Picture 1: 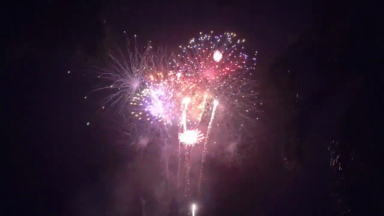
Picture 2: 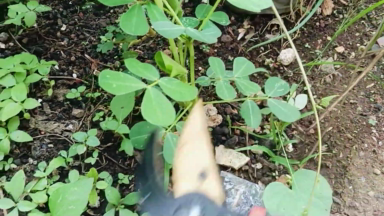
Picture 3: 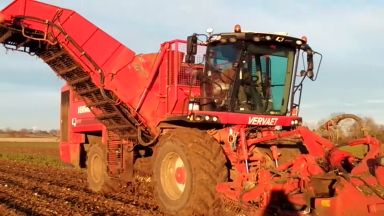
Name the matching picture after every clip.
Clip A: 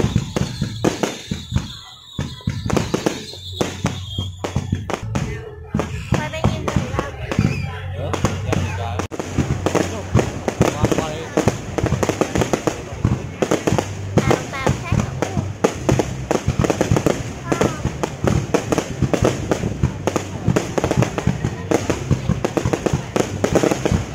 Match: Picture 1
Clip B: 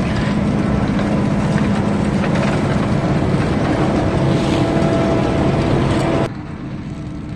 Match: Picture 3